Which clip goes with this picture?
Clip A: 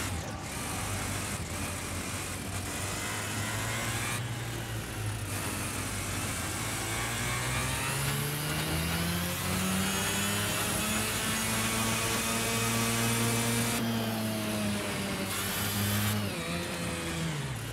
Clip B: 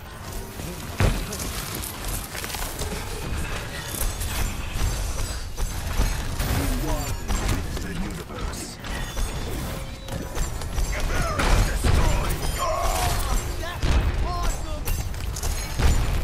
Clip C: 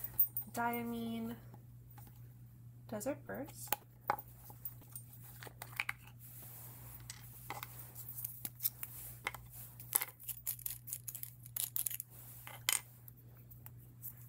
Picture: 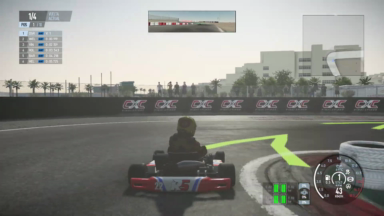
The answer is A